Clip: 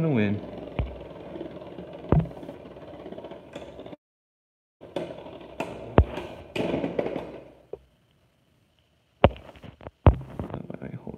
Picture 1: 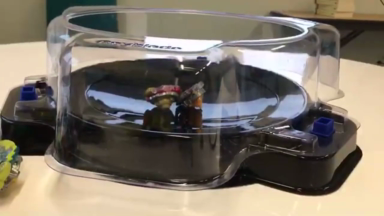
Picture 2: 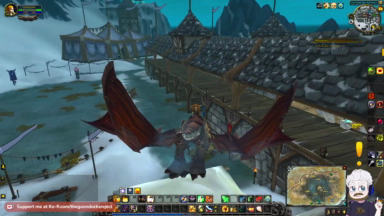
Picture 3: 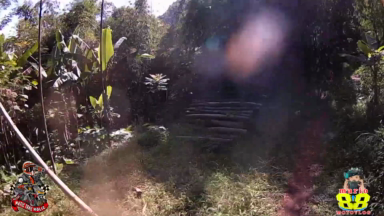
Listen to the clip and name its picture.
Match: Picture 1